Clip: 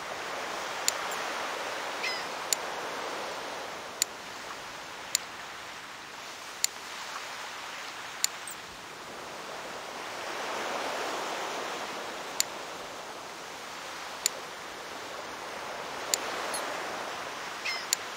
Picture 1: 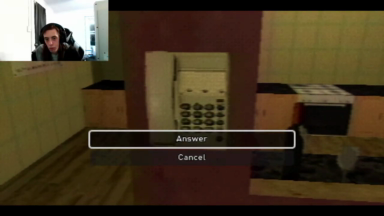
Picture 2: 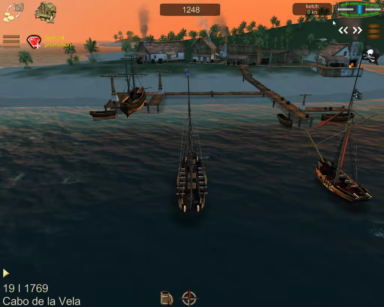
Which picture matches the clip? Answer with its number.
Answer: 2